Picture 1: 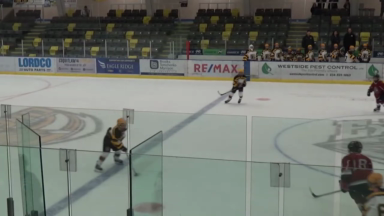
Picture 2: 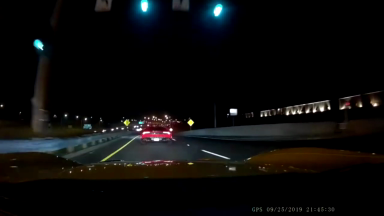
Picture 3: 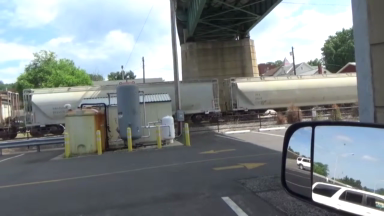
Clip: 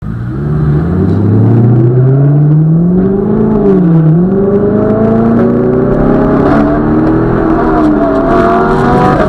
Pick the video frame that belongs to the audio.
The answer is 2